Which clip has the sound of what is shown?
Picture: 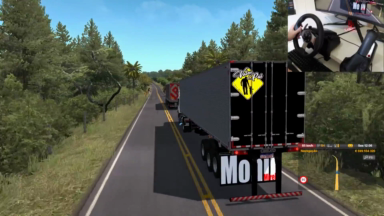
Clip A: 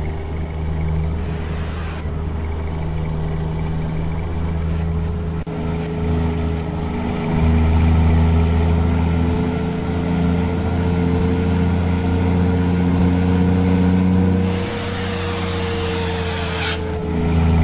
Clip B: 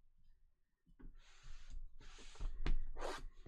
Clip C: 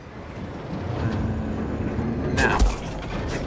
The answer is A